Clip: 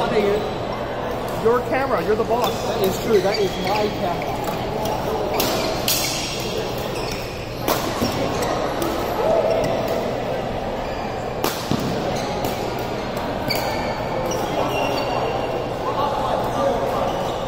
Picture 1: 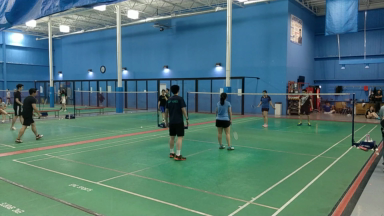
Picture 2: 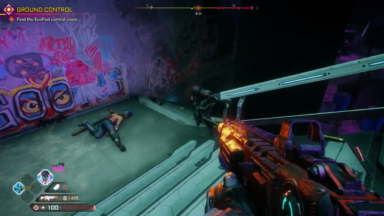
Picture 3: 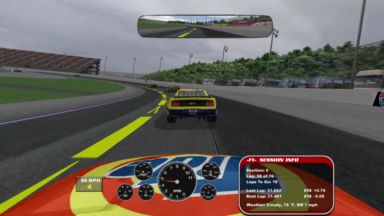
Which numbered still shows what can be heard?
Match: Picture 1